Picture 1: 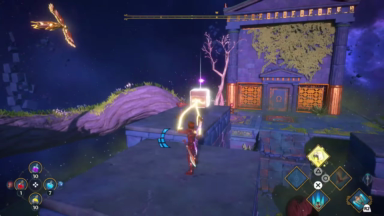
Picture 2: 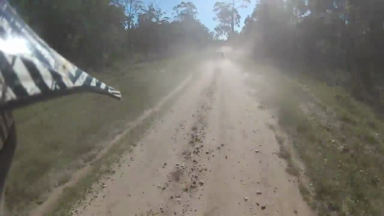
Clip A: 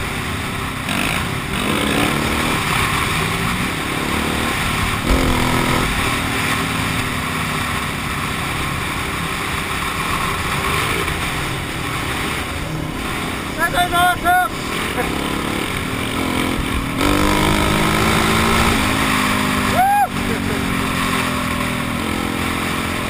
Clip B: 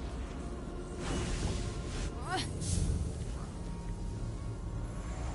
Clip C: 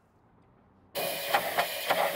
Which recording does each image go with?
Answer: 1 B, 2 A